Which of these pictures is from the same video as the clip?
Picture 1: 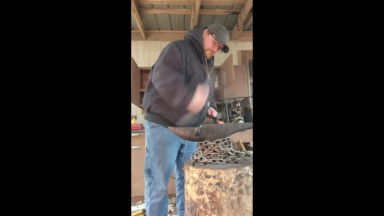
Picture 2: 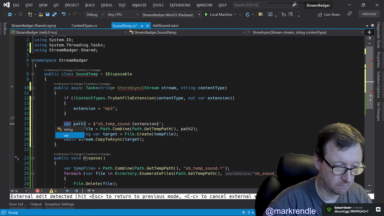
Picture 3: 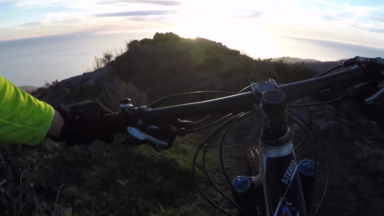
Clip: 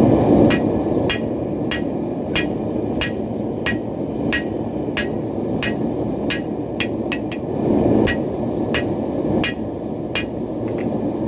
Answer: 1